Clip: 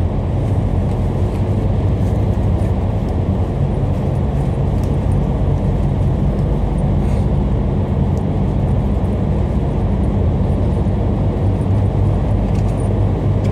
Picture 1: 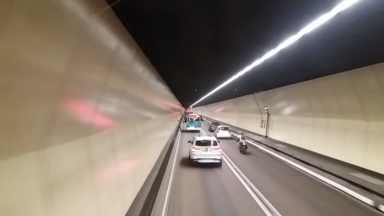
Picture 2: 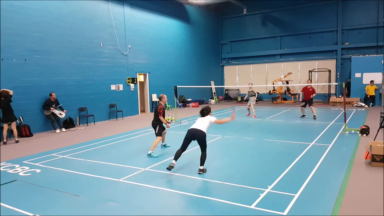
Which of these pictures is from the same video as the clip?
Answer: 1